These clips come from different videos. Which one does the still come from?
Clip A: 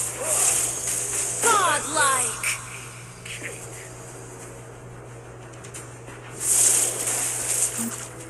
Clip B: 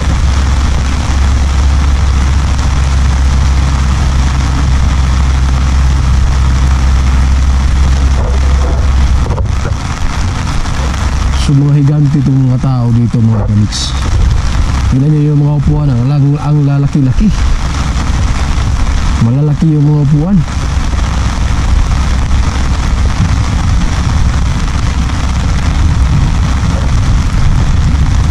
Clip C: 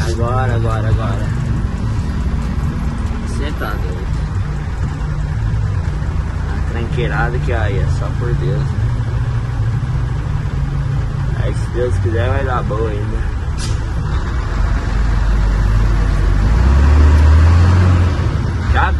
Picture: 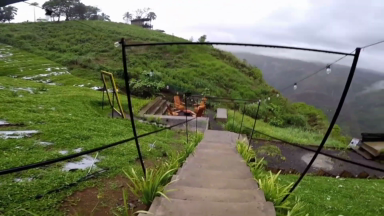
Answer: B